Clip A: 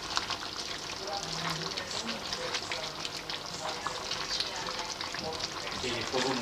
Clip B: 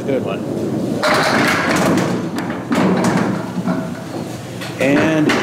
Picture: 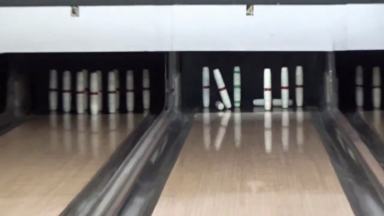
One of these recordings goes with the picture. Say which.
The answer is B